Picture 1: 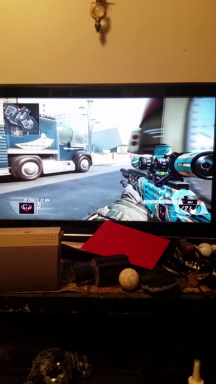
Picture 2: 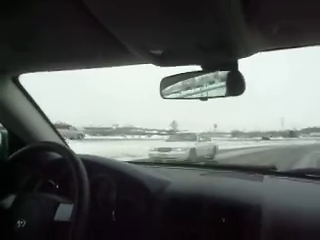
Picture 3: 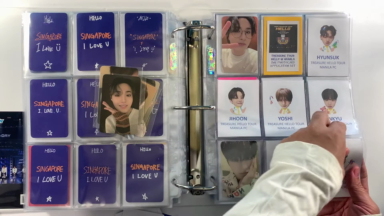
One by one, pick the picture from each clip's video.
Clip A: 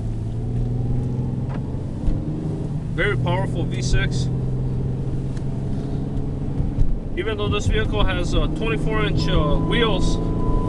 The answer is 2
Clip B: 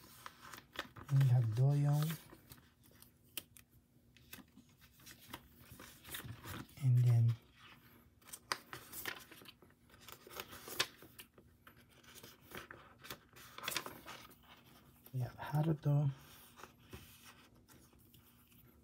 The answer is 3